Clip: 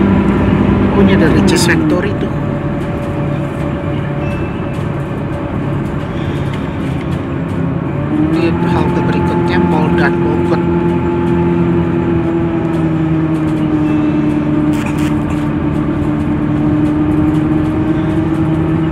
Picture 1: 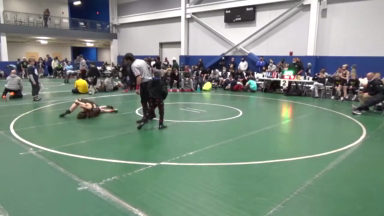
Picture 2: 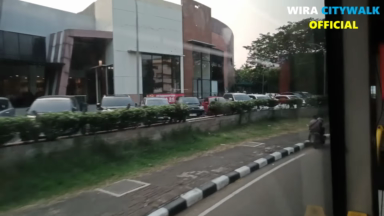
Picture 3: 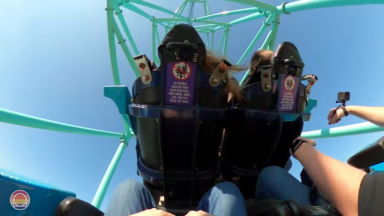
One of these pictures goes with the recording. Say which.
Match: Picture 2